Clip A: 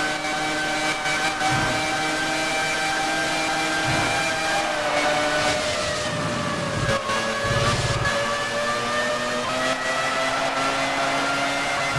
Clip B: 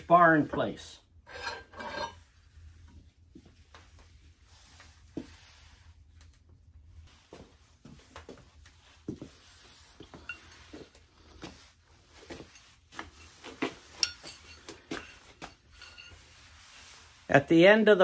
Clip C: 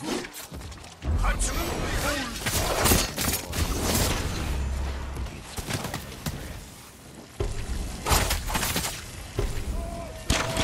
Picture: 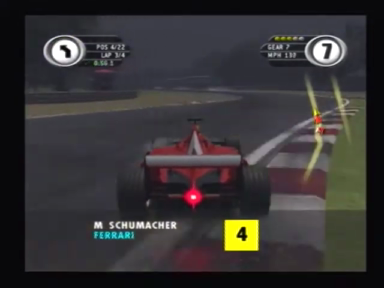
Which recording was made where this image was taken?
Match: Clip A